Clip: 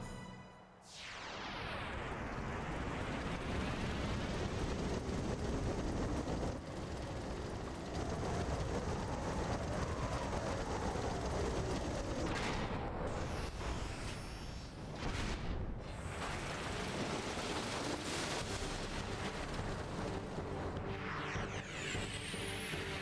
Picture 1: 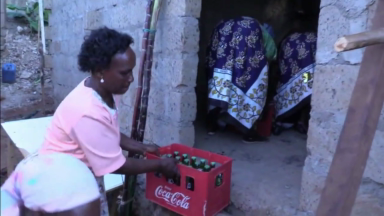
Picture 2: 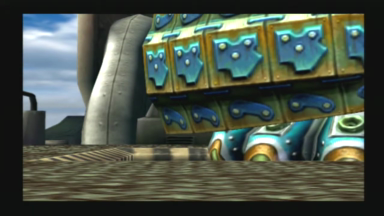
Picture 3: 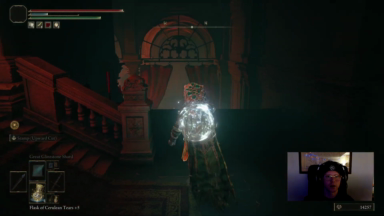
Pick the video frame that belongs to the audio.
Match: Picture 2